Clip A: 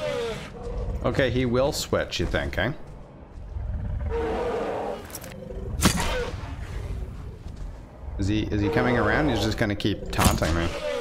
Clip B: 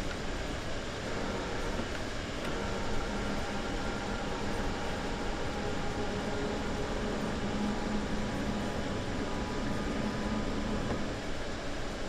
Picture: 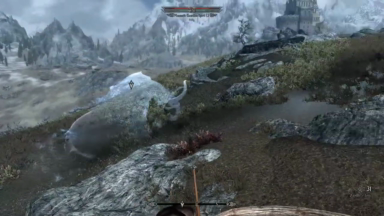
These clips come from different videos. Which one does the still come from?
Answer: A